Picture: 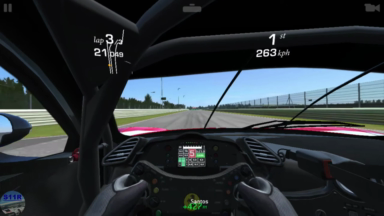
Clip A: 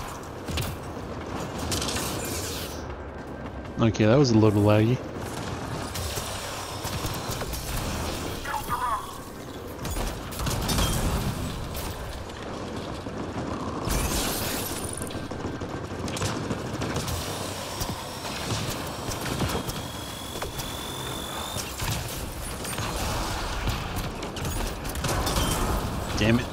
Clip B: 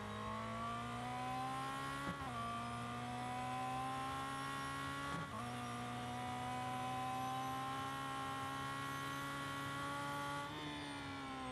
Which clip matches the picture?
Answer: B